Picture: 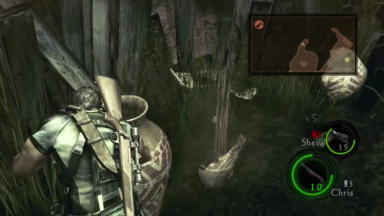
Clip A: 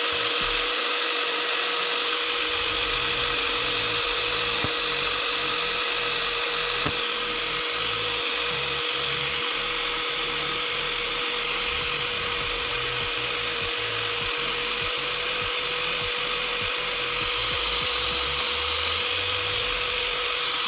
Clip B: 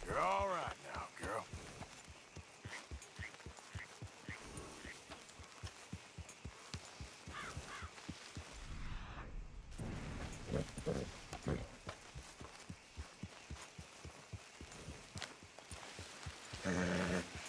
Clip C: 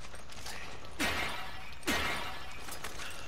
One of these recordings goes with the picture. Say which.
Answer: C